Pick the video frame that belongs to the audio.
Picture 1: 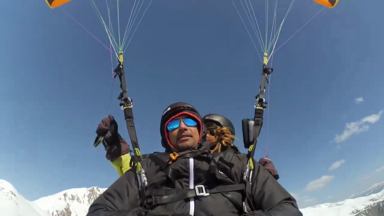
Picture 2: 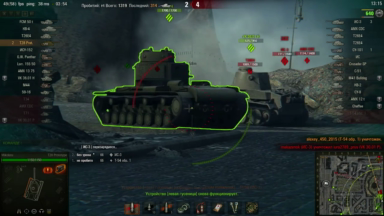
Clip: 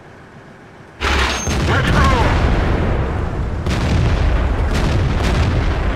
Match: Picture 2